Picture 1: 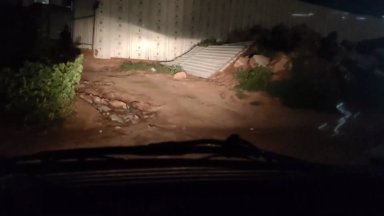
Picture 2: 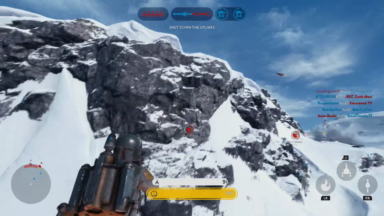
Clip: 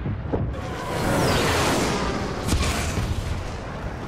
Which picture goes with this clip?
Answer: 2